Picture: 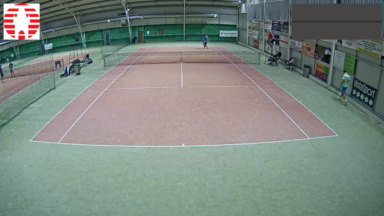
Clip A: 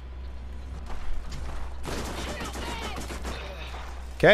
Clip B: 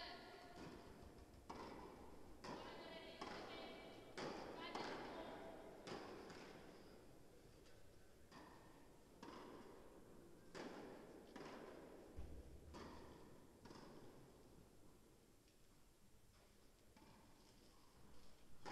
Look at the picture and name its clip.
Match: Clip B